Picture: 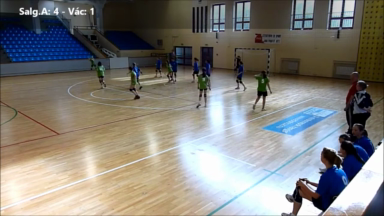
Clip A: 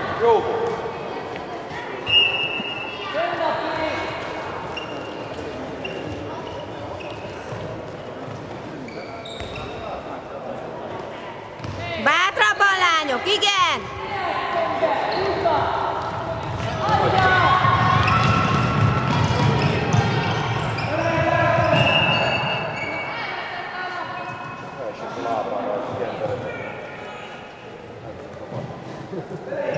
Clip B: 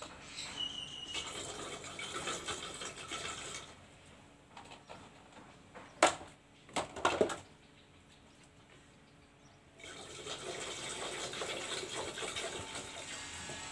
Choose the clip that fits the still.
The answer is A